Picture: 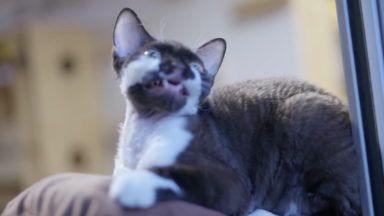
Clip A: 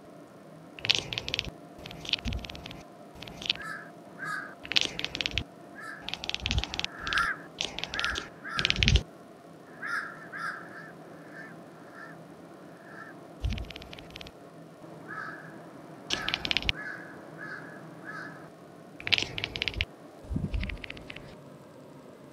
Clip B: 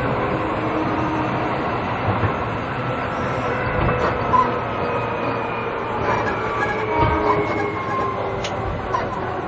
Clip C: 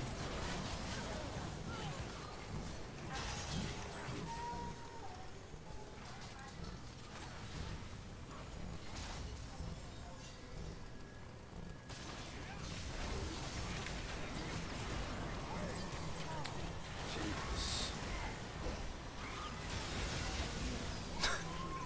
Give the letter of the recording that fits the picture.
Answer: A